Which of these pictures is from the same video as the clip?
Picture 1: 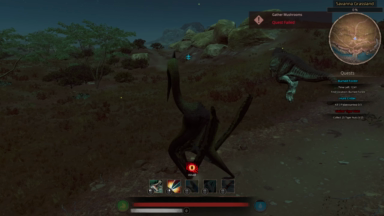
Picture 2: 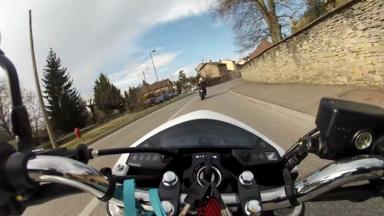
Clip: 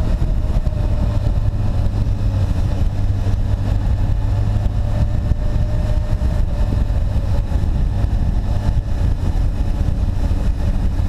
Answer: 2